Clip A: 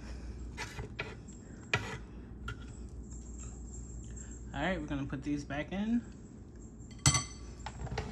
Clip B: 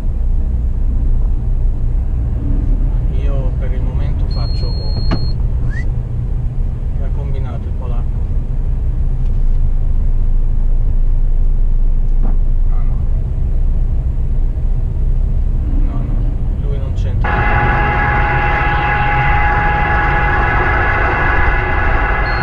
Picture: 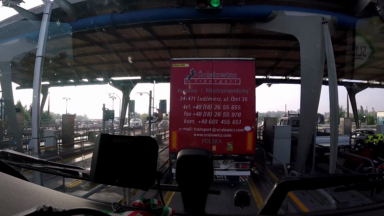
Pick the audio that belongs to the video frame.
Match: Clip B